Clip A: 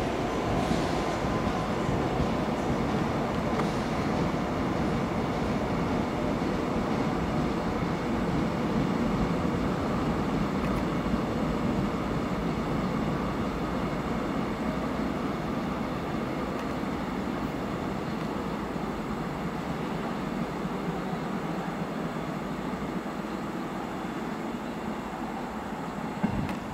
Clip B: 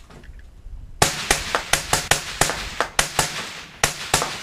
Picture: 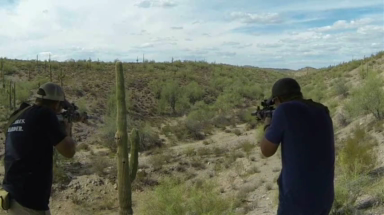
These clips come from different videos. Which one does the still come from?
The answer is B